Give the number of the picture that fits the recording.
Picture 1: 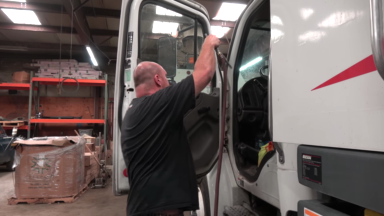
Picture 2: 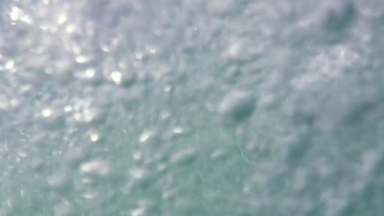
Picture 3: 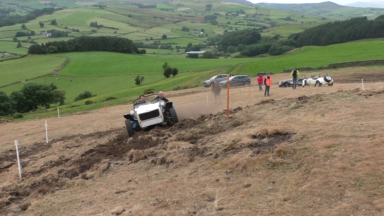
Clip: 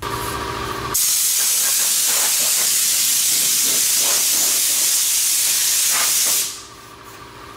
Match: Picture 1